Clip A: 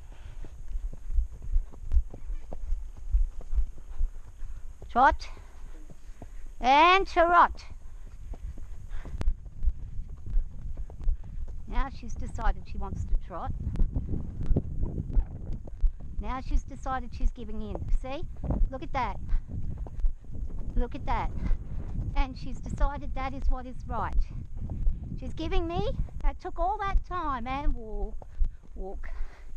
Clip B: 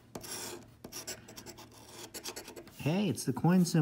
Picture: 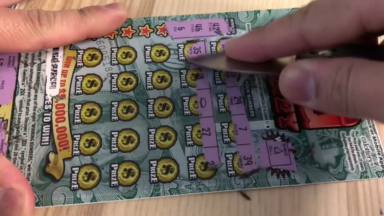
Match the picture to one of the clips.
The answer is B